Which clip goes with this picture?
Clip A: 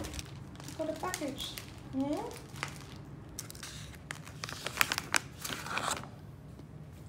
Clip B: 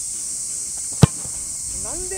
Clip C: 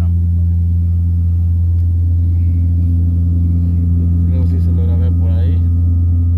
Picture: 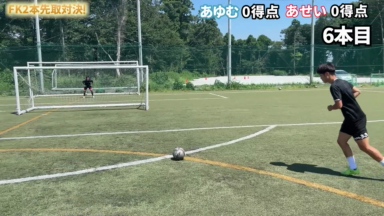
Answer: B